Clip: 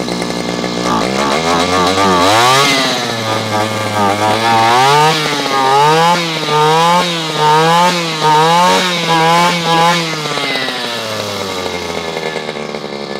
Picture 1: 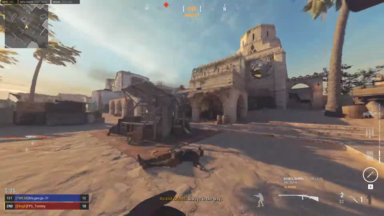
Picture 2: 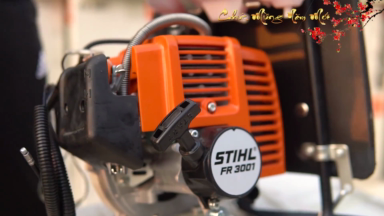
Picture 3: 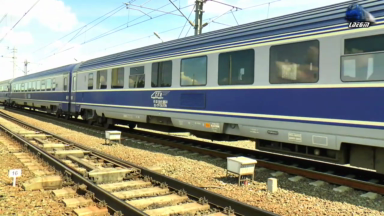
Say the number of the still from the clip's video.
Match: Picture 2